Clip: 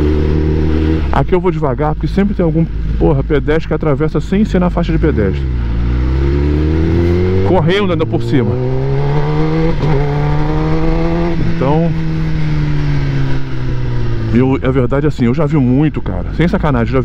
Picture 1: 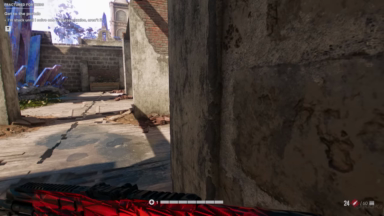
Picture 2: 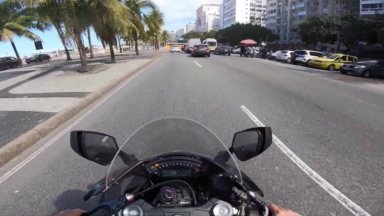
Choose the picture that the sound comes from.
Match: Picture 2